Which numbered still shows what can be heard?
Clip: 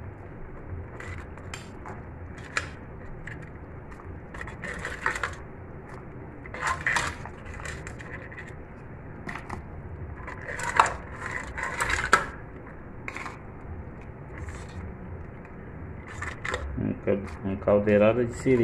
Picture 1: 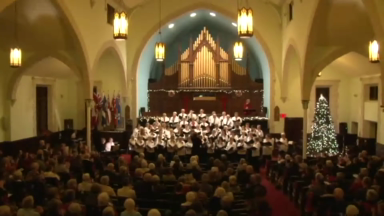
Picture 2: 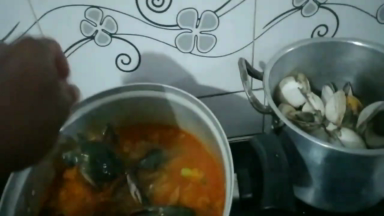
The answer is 2